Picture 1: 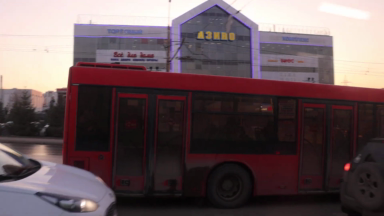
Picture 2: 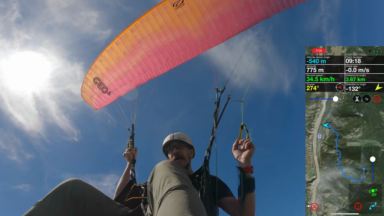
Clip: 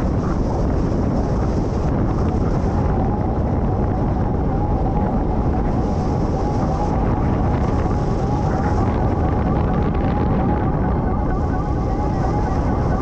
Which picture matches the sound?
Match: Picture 2